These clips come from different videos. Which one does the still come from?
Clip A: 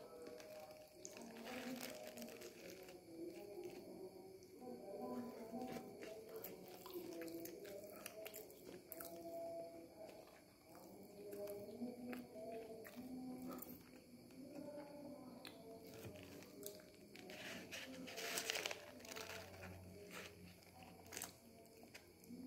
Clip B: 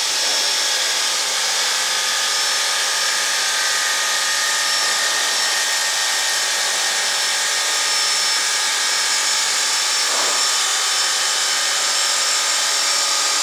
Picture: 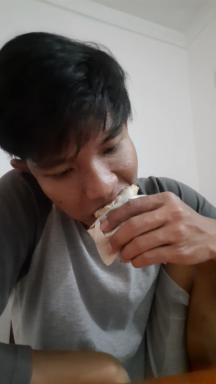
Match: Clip A